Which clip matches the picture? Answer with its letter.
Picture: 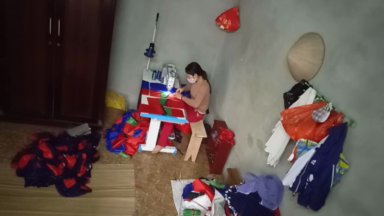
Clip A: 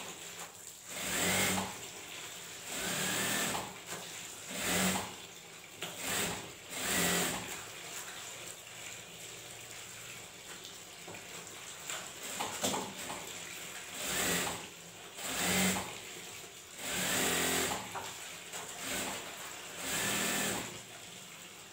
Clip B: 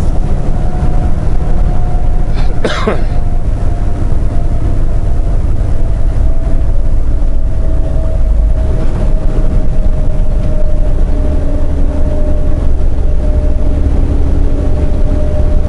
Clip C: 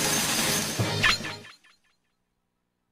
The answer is A